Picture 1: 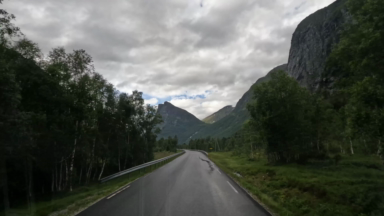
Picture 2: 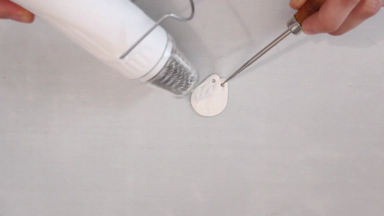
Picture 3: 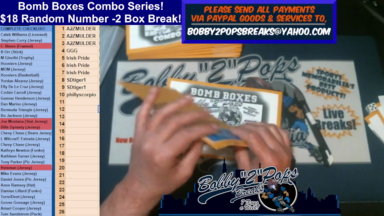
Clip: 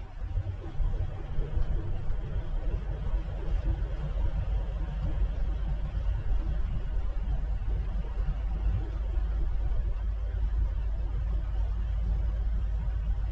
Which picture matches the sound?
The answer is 1